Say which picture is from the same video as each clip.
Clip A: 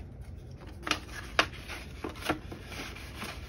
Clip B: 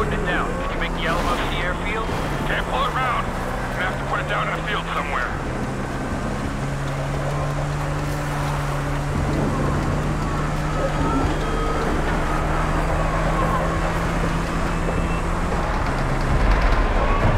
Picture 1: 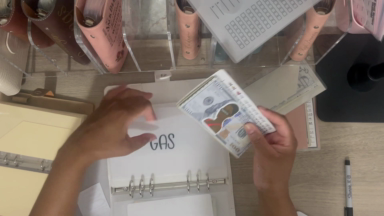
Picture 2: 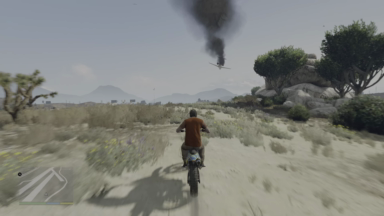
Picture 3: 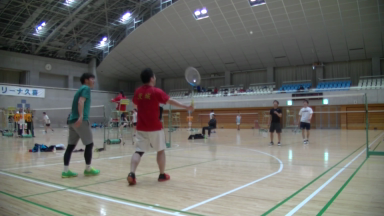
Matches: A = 1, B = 2